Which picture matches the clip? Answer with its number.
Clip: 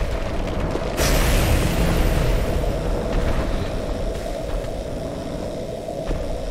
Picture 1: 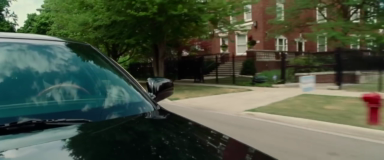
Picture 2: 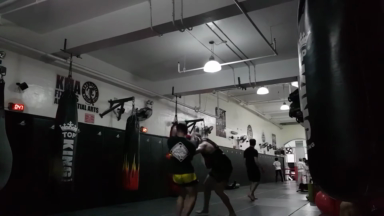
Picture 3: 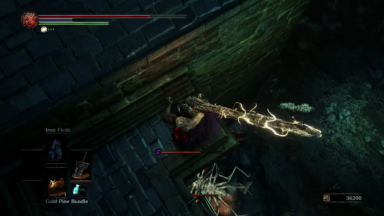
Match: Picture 3